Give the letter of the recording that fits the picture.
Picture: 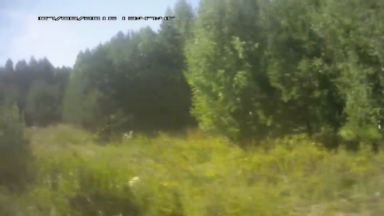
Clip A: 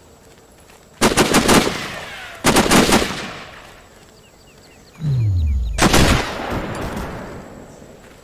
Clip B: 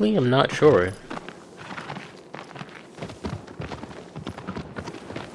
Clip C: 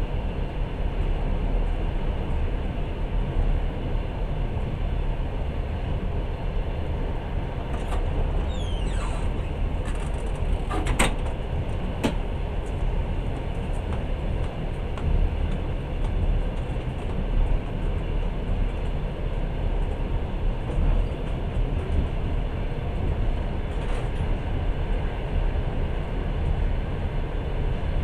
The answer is C